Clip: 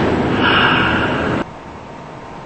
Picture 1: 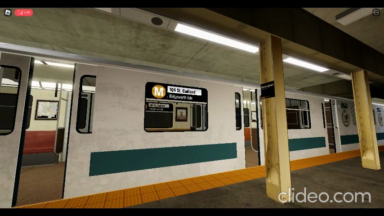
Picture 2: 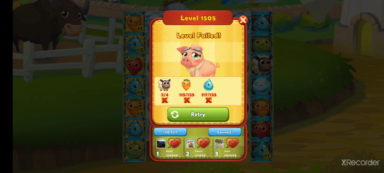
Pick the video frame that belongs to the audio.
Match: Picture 1